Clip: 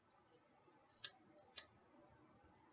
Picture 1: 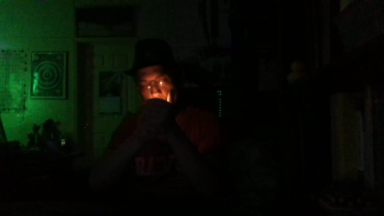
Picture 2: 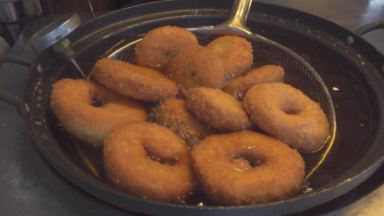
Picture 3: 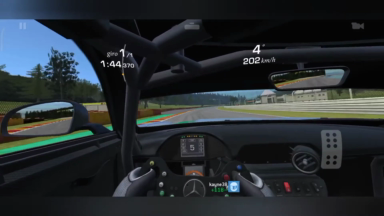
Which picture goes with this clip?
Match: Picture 1